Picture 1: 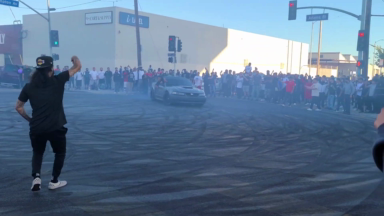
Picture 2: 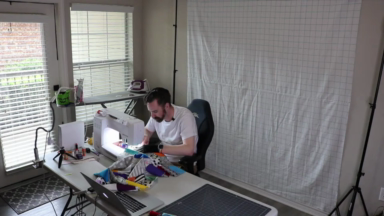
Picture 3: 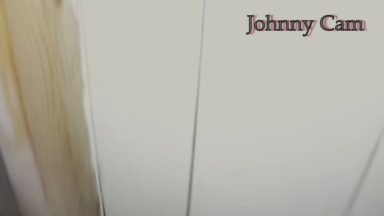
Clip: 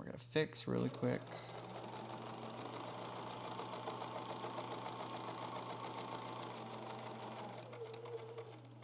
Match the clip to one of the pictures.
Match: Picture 2